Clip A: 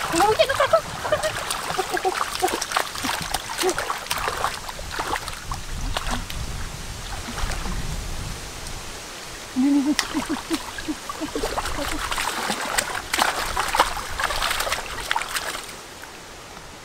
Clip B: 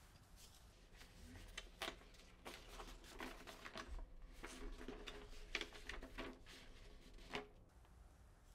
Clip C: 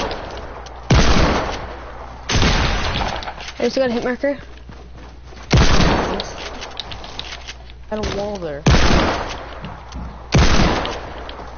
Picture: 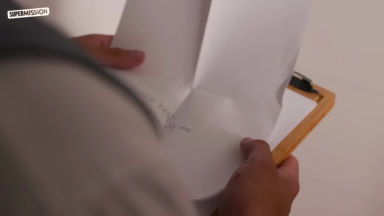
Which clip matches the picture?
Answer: B